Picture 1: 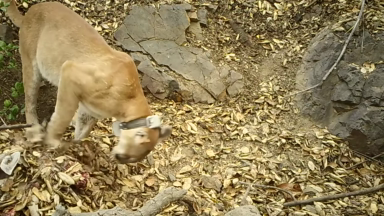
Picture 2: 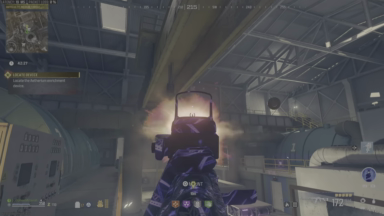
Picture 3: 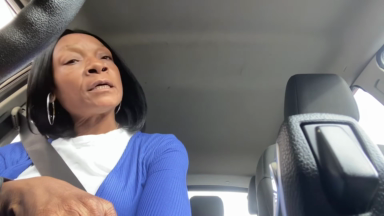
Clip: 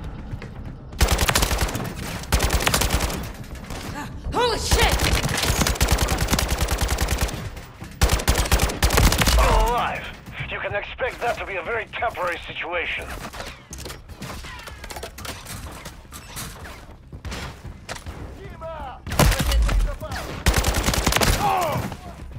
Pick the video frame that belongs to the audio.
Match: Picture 2